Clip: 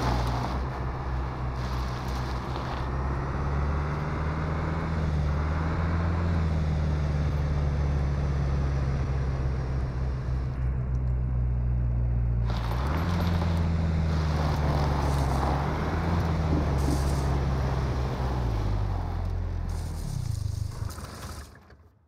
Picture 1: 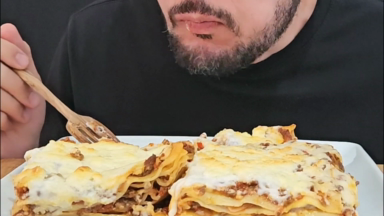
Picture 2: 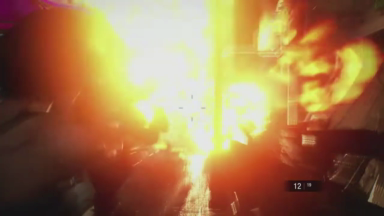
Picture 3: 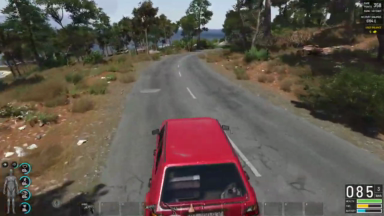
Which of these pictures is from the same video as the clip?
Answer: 3